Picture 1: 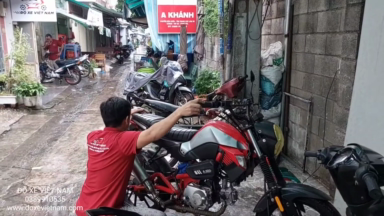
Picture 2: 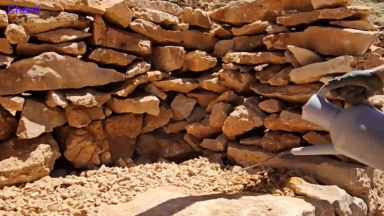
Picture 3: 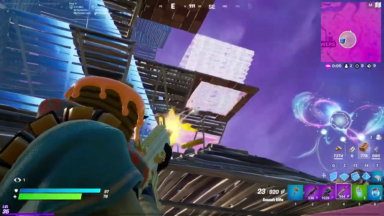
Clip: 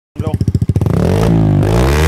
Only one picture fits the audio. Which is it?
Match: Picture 1